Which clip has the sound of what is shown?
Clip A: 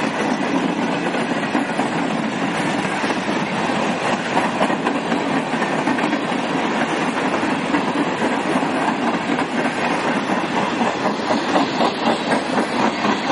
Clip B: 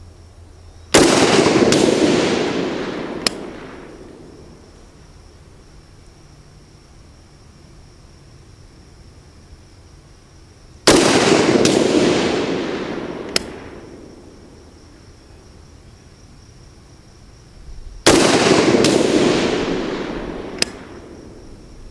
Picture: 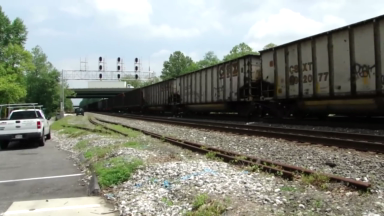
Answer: A